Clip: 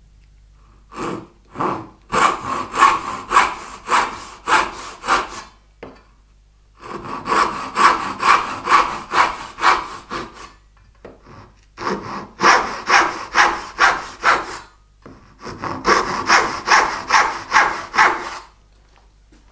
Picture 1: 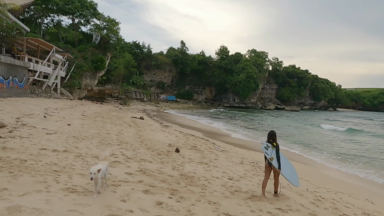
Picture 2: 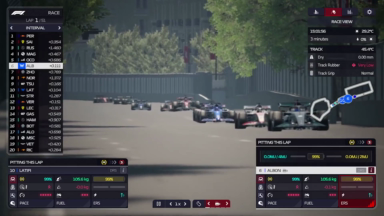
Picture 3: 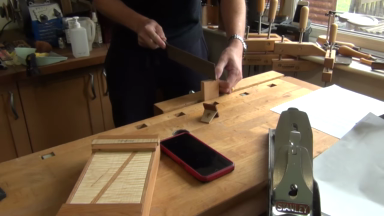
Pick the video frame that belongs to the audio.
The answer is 3